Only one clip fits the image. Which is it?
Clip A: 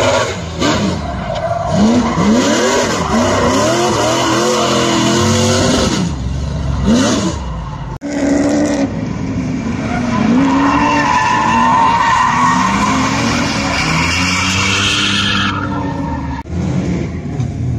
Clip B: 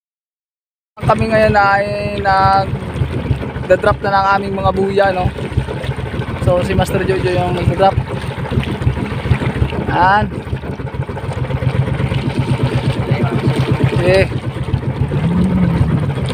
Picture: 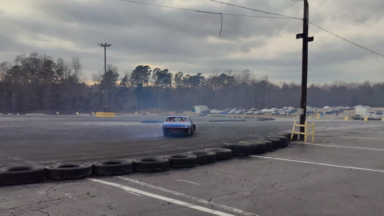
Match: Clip A